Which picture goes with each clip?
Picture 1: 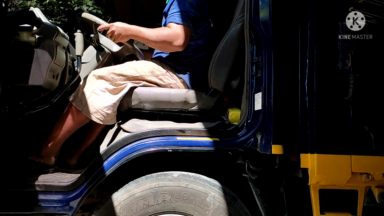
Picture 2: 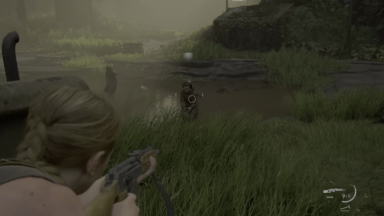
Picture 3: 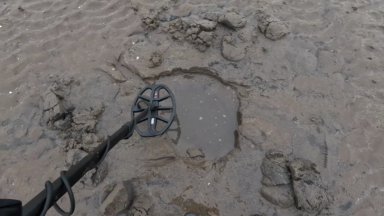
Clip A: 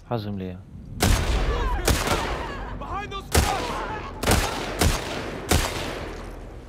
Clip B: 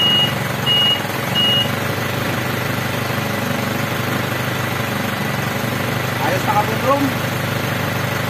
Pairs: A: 2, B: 1